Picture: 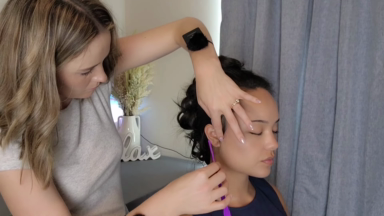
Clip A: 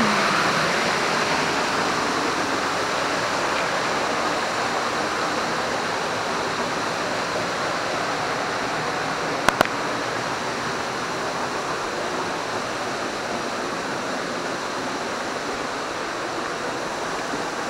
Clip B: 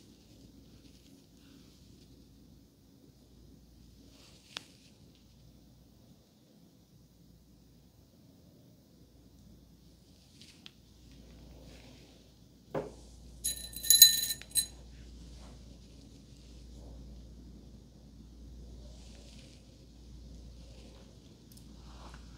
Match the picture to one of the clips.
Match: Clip B